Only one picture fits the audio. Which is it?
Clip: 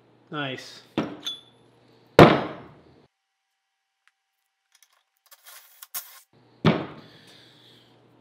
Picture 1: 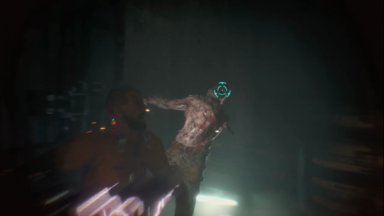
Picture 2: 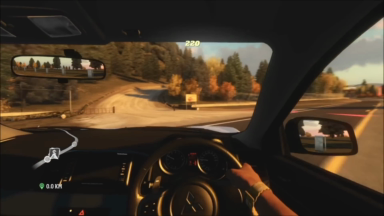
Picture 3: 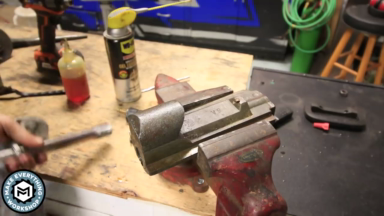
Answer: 3